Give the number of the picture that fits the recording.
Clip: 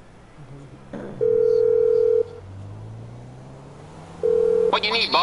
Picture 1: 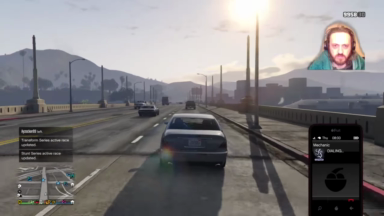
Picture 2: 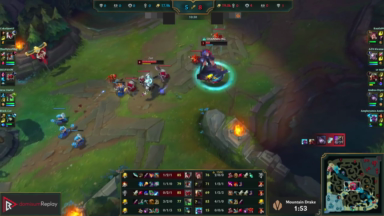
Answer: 1